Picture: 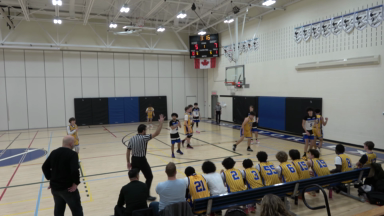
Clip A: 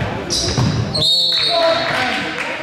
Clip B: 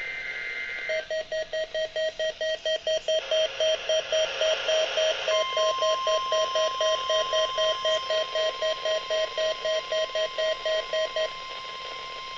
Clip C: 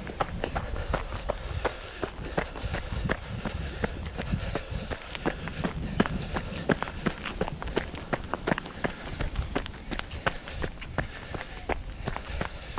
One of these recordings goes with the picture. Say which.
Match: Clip A